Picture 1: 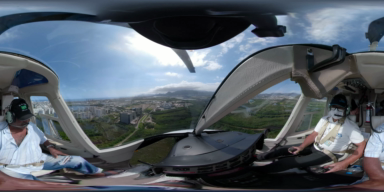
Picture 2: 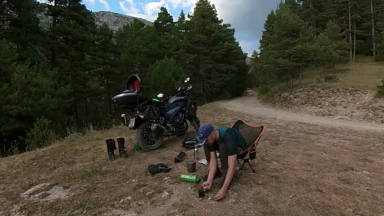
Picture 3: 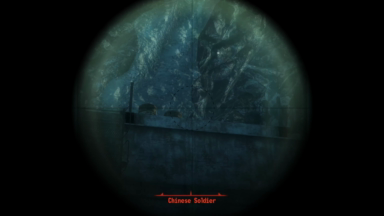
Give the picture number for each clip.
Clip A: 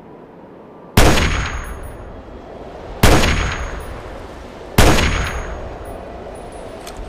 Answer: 3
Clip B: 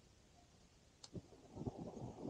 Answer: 2